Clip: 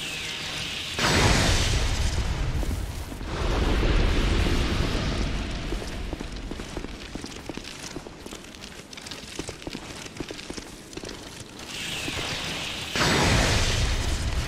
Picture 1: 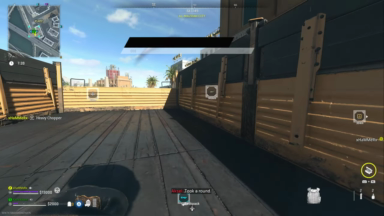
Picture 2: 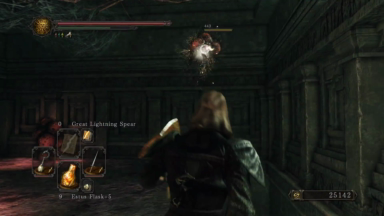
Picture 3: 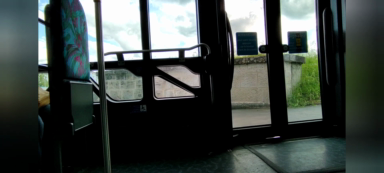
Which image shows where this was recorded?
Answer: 2